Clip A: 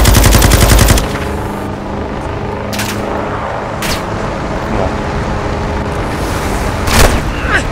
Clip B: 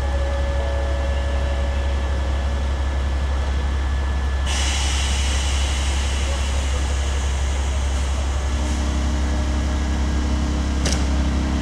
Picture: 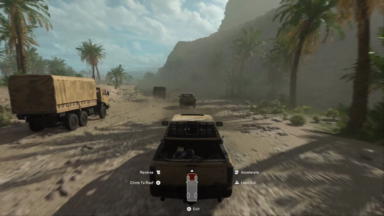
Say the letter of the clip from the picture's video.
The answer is A